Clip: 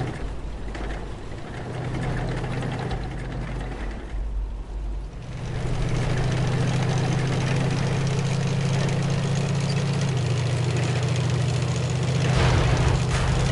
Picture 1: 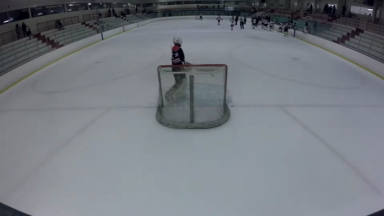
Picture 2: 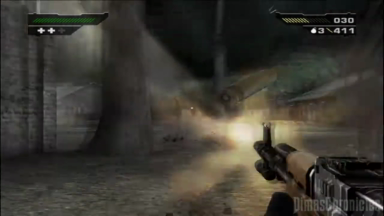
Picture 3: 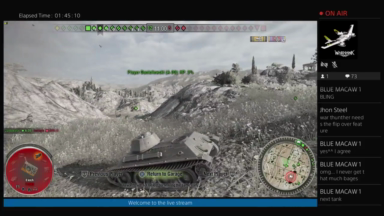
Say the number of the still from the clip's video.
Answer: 3